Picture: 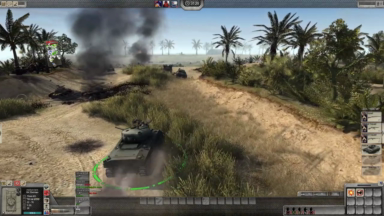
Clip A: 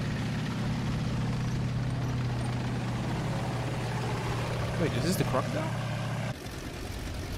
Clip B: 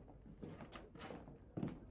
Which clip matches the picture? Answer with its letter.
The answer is A